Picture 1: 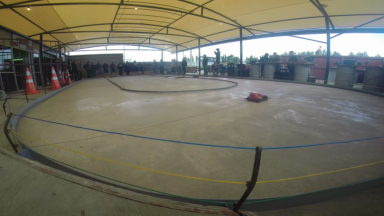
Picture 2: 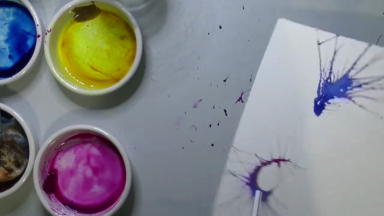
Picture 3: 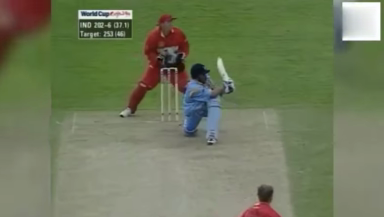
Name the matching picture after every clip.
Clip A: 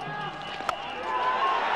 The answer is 3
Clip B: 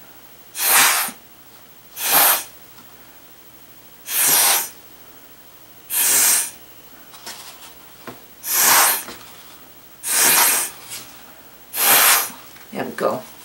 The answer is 2